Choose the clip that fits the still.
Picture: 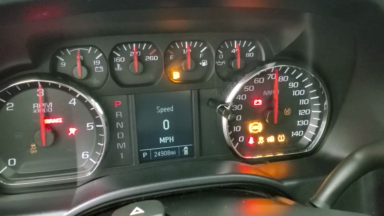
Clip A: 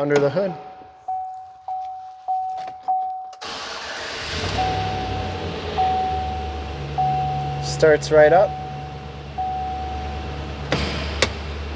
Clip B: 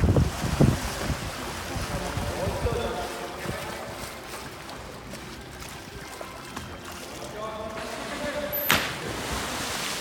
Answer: A